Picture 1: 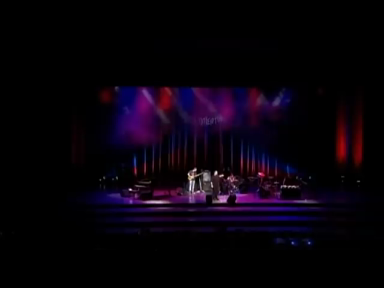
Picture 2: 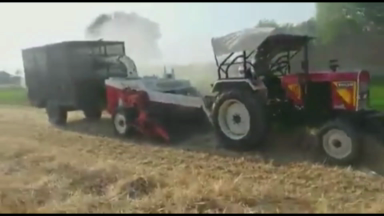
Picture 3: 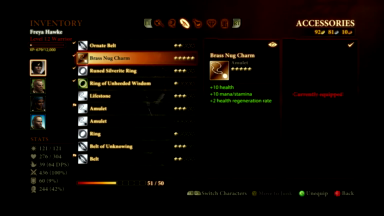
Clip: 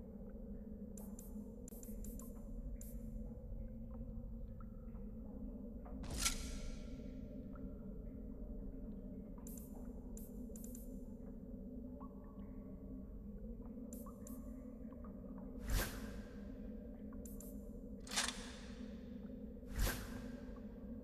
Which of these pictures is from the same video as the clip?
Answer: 3